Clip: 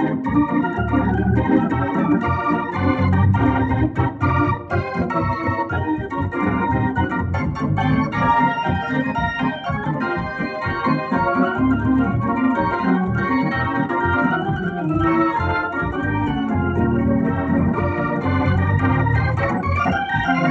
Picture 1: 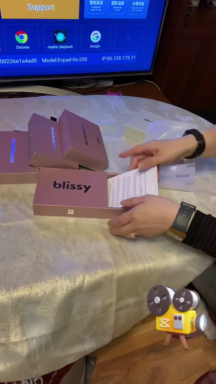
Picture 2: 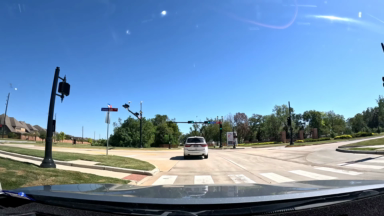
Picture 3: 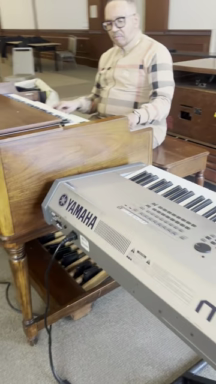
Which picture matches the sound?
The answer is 3